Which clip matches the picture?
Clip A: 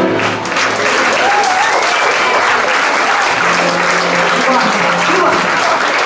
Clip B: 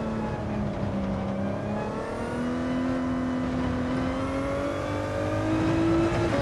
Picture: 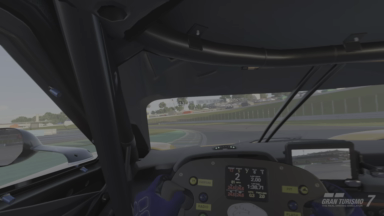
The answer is B